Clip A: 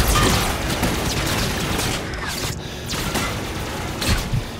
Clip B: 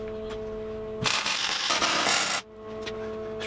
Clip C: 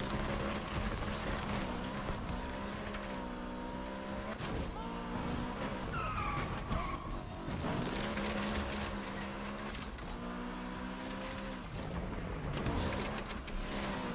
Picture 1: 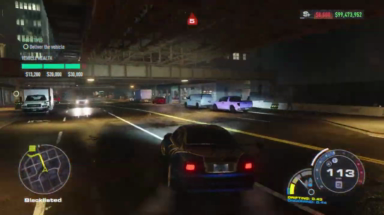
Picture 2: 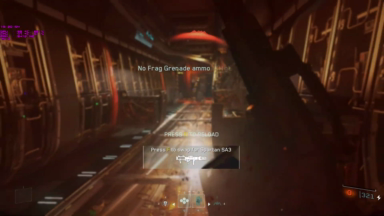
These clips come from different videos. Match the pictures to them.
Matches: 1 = C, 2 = A